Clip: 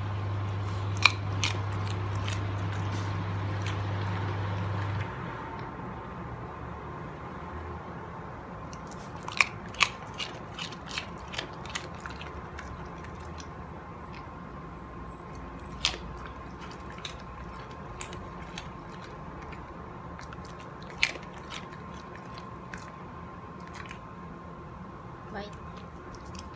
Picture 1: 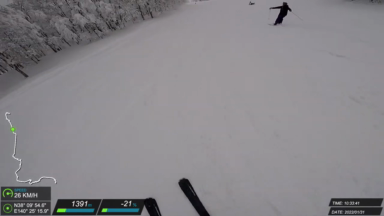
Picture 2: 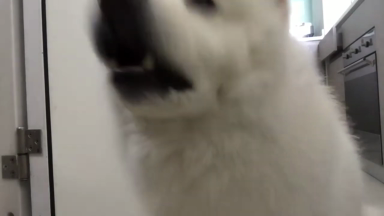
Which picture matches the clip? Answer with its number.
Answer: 2